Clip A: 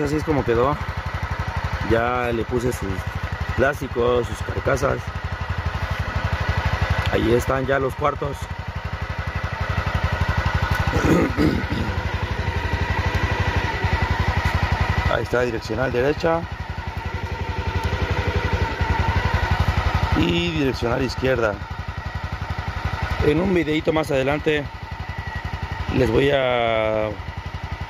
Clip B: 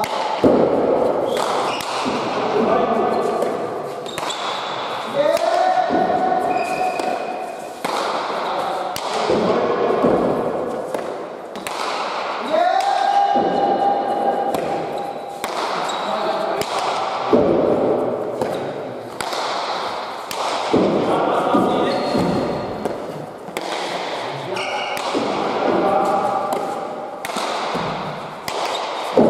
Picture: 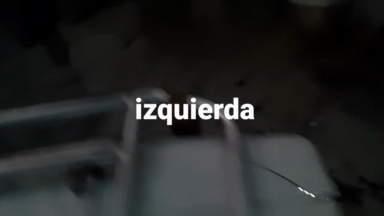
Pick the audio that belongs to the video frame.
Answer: A